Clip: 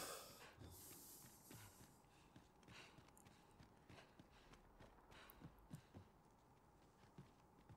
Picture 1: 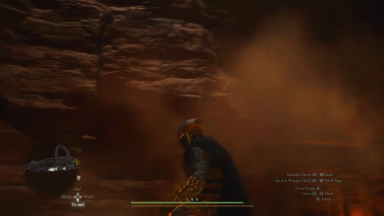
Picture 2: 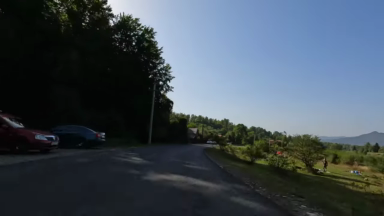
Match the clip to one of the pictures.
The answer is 1